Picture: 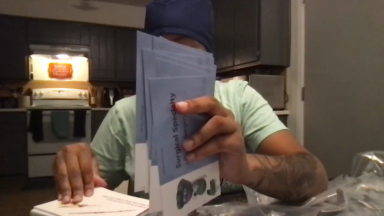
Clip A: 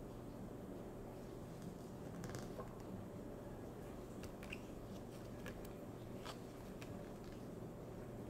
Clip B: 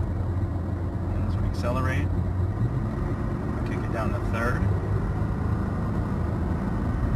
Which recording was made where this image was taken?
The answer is A